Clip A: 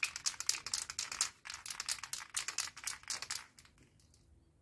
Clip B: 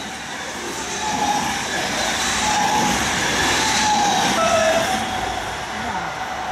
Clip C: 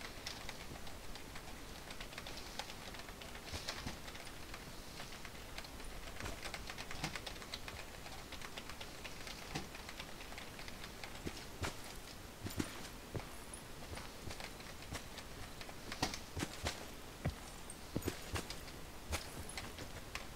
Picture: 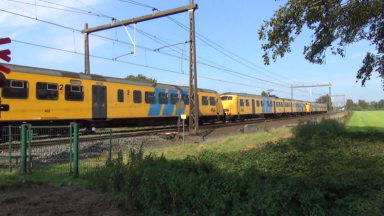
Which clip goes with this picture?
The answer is B